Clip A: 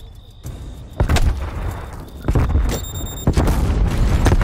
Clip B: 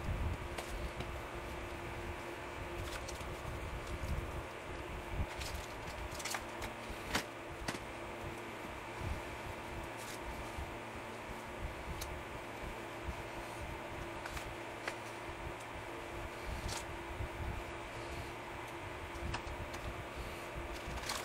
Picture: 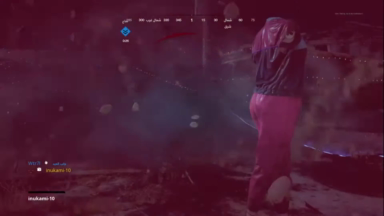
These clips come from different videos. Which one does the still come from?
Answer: A